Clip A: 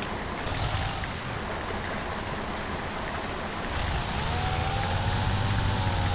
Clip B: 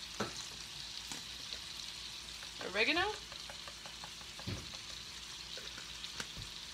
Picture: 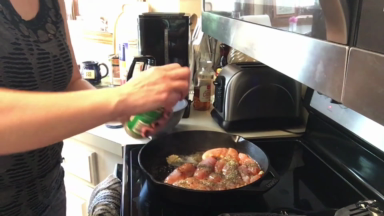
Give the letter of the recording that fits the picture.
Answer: B